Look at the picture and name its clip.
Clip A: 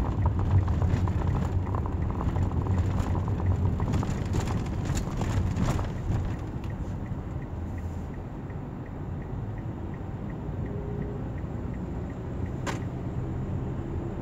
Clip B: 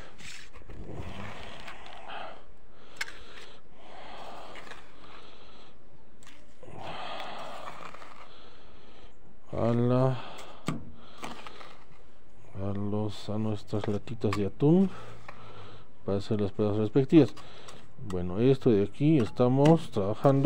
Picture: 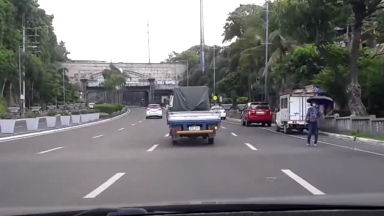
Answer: A